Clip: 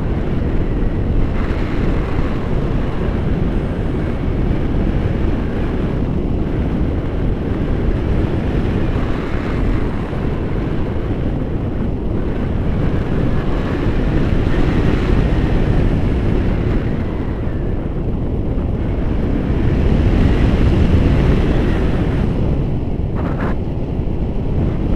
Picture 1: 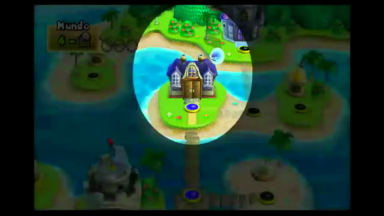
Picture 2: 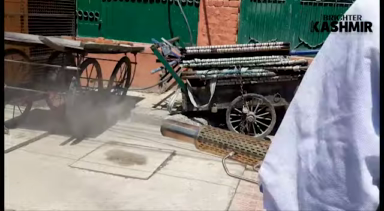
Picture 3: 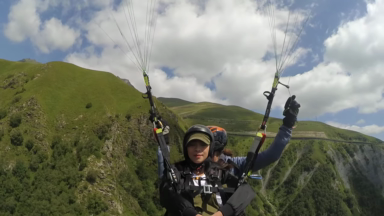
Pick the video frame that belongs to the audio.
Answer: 3